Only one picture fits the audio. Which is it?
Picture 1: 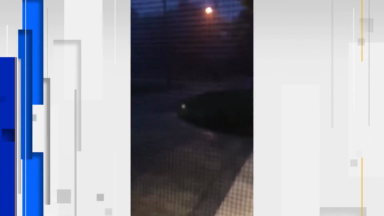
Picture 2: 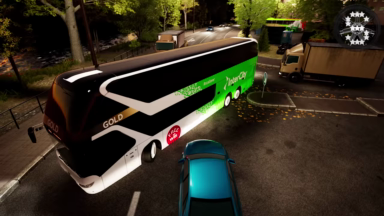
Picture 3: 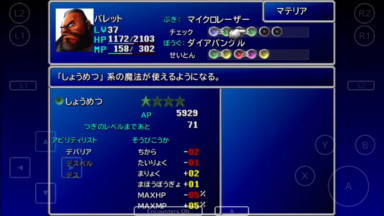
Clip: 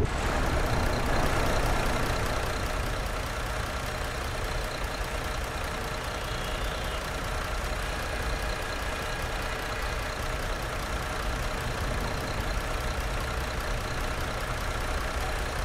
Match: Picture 2